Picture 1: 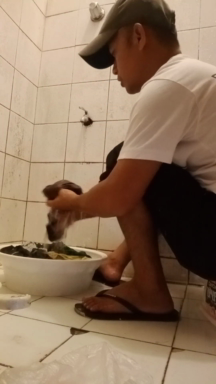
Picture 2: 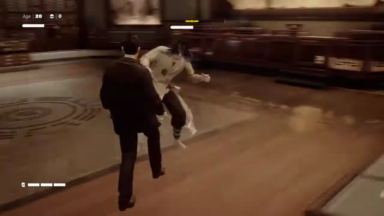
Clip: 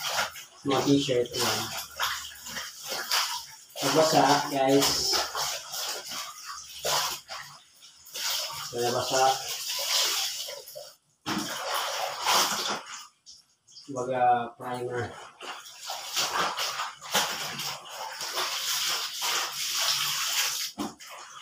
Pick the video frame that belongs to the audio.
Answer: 1